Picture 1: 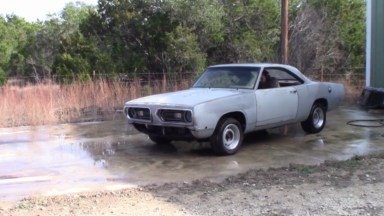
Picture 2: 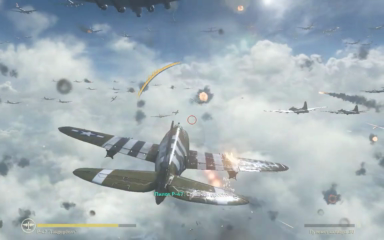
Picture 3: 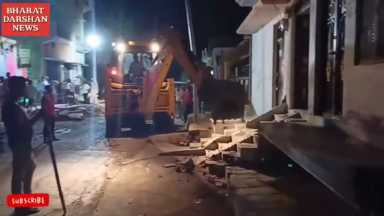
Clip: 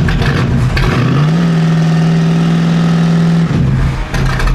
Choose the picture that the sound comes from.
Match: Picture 1